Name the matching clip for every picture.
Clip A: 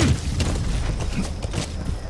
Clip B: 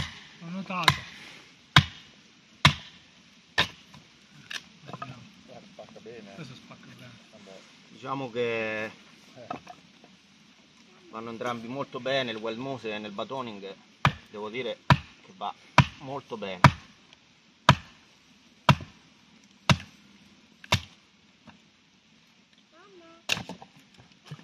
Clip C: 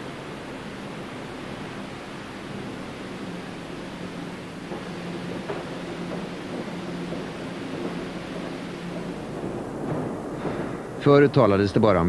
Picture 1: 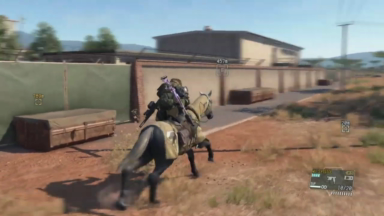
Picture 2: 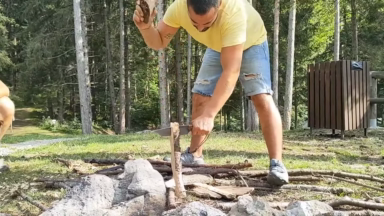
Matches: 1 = A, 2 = B